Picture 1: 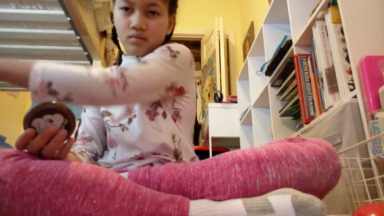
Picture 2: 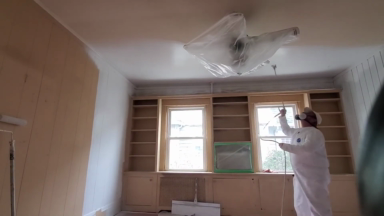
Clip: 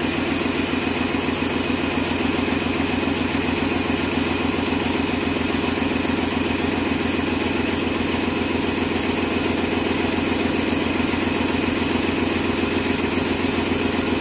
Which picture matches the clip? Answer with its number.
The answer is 2